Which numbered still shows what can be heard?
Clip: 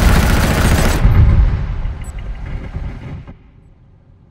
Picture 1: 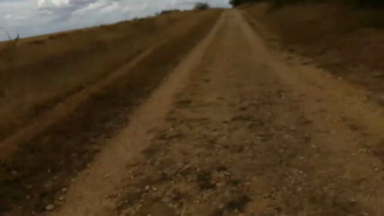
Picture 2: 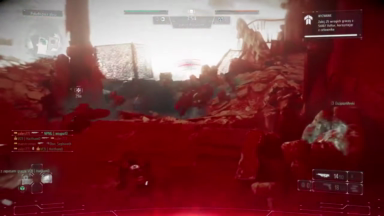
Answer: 2